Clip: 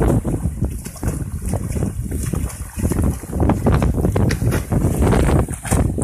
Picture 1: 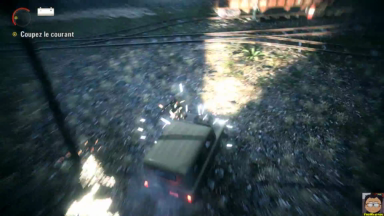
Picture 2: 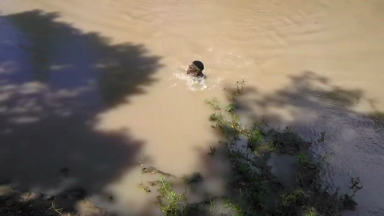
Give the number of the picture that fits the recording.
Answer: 2